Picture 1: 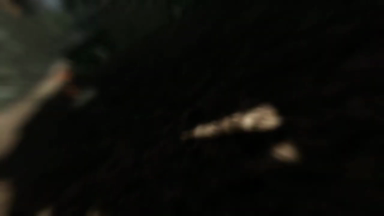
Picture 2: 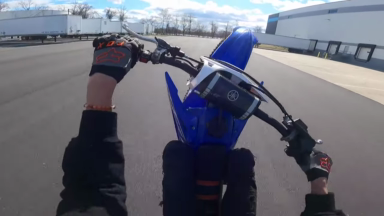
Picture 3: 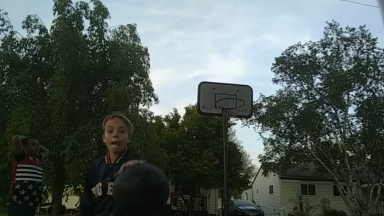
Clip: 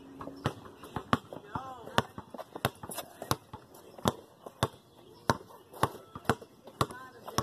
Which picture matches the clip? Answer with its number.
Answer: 3